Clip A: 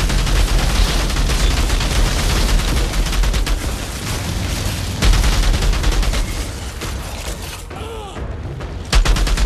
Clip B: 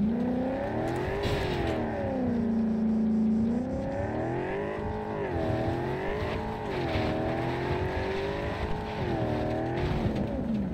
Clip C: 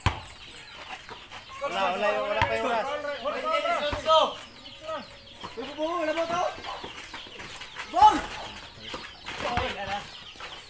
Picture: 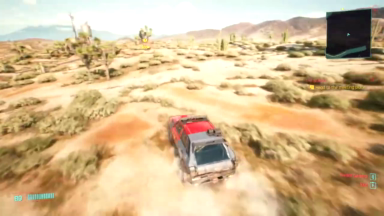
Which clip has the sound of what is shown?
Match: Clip B